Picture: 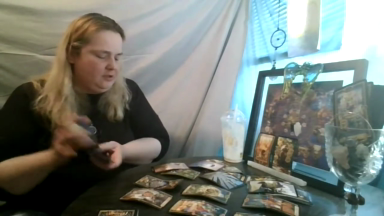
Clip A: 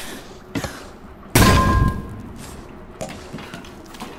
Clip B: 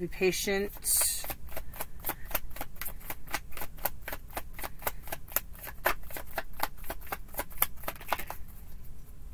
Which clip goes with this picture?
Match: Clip B